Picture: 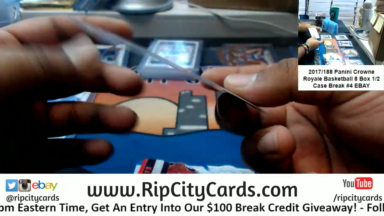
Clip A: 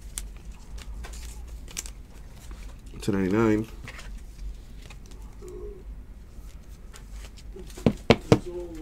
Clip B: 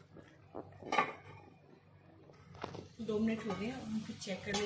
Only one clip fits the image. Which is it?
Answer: A